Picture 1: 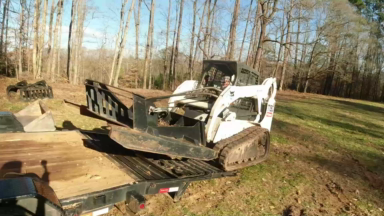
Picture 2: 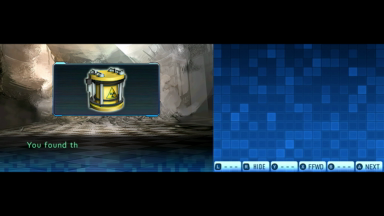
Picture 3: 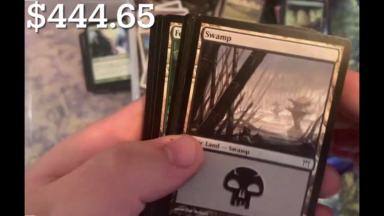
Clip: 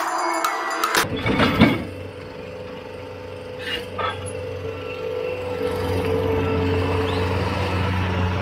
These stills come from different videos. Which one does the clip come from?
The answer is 1